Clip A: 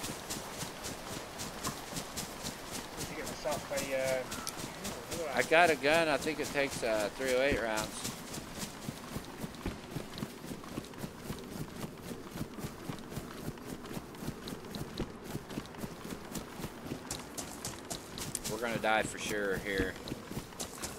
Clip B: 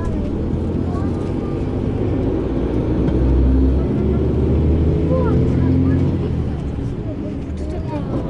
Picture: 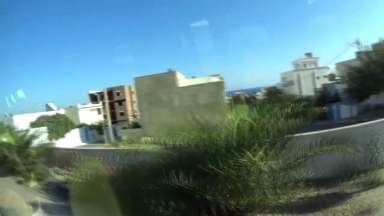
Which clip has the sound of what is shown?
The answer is B